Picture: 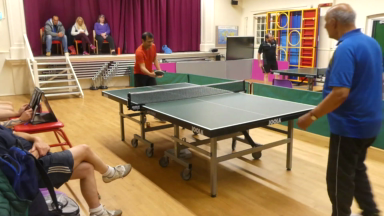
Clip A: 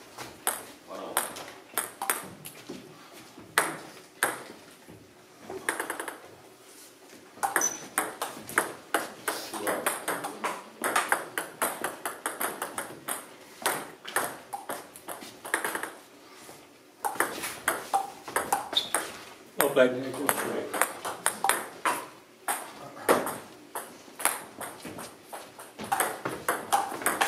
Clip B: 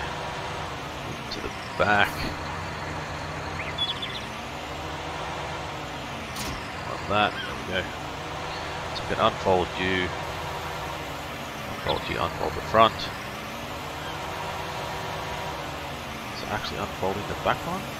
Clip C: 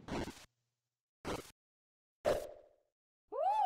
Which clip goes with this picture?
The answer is A